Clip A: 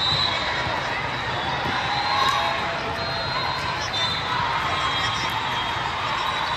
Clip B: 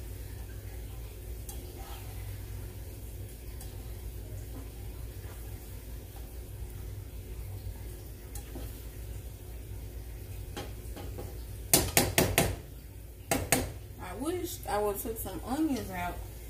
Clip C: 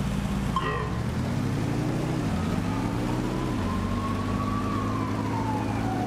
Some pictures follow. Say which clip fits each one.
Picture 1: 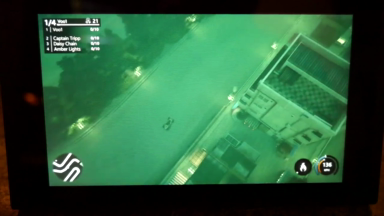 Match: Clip C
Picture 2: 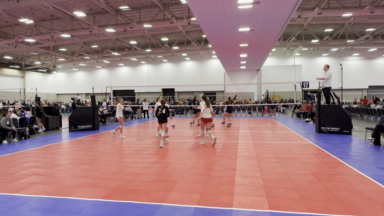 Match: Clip A